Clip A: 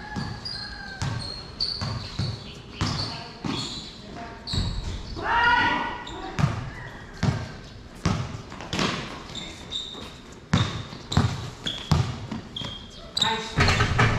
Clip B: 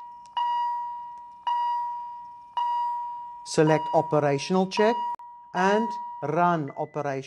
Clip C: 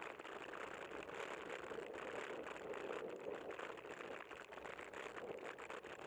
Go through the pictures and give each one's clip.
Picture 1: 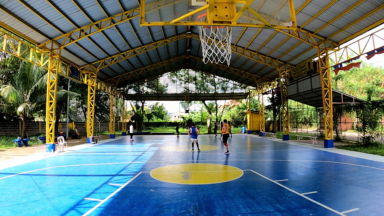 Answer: A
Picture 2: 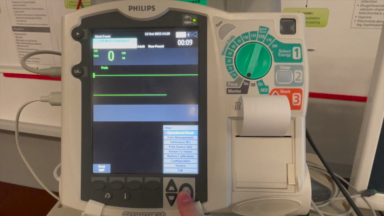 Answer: B